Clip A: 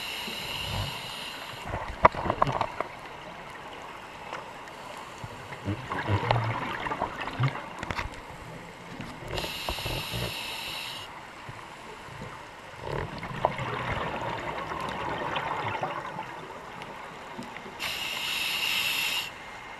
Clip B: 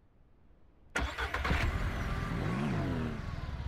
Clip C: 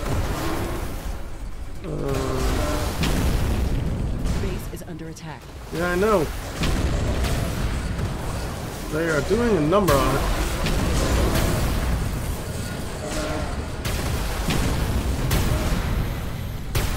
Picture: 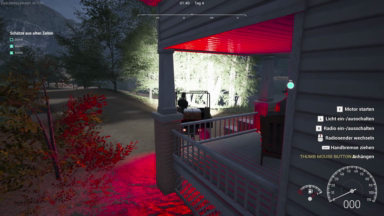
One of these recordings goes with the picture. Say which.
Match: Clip B